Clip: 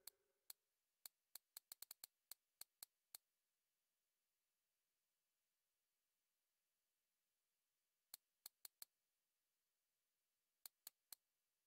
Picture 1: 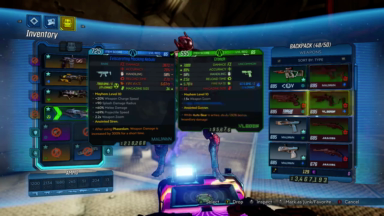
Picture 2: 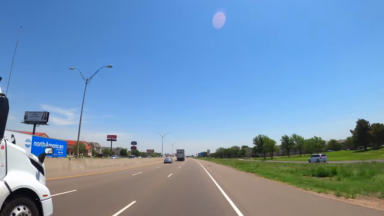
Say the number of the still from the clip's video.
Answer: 1